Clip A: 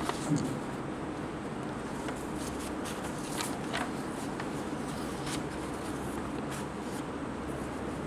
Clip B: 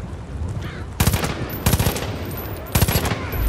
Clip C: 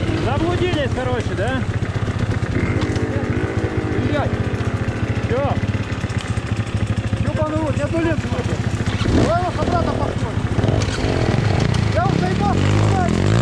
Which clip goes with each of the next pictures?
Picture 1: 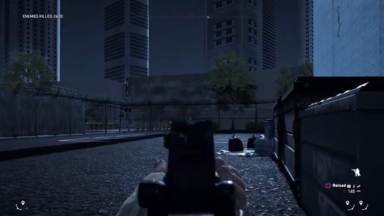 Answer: B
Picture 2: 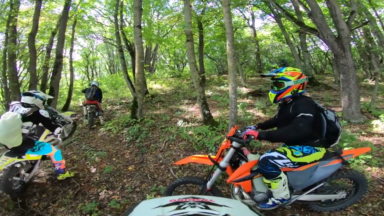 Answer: C